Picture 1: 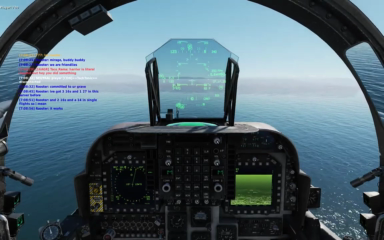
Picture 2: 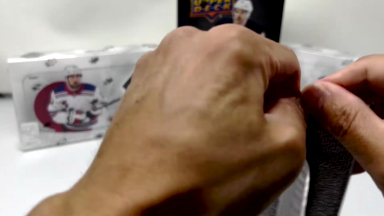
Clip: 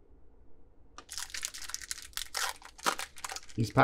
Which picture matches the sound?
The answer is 2